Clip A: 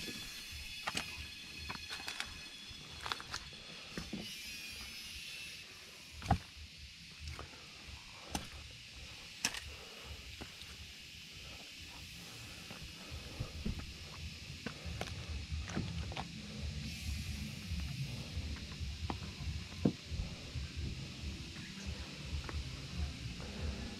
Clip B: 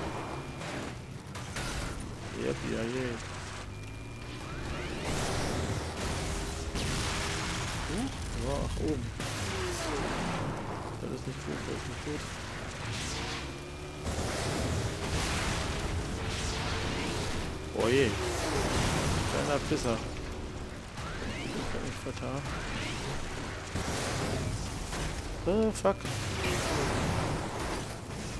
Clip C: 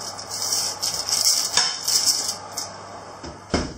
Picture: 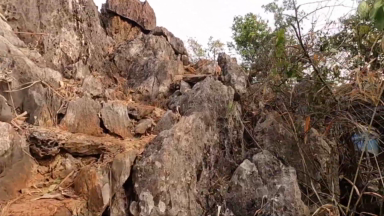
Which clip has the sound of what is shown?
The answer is A